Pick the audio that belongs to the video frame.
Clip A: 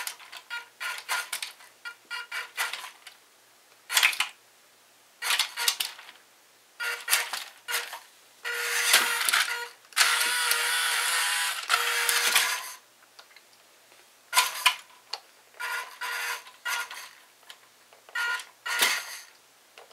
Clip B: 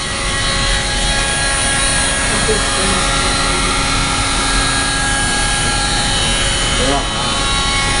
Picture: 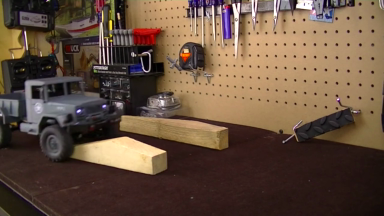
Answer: A